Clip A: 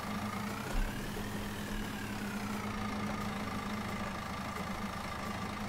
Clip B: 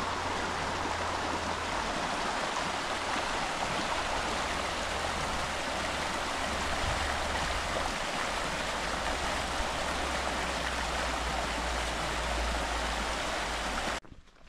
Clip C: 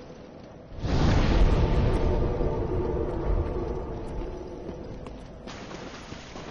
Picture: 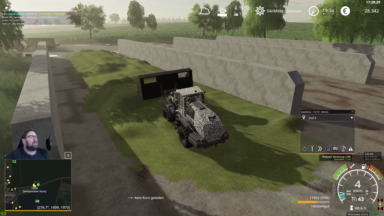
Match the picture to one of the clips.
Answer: A